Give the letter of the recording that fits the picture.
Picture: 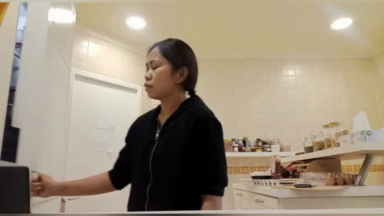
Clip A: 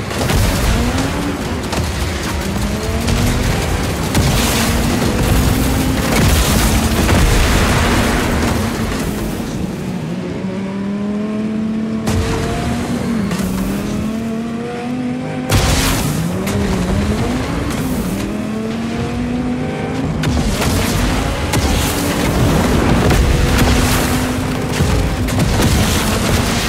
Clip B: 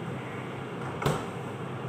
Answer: B